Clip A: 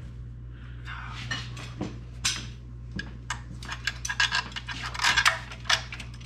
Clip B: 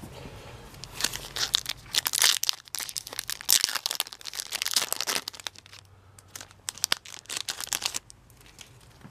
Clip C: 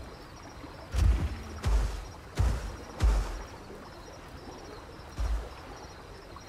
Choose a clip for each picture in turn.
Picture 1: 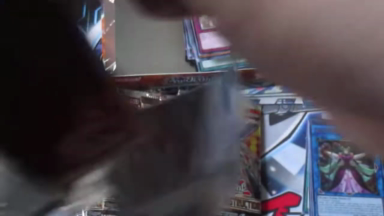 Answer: B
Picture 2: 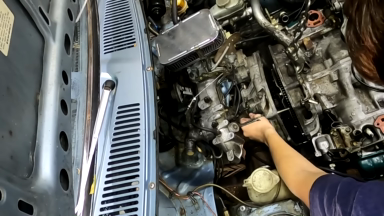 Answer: A